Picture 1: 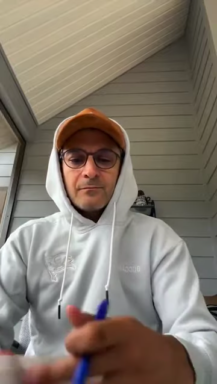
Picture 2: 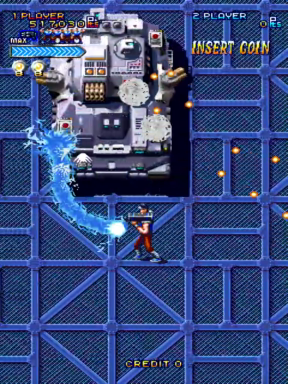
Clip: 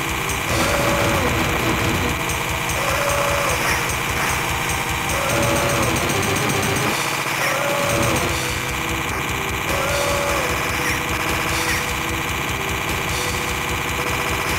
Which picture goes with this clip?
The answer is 2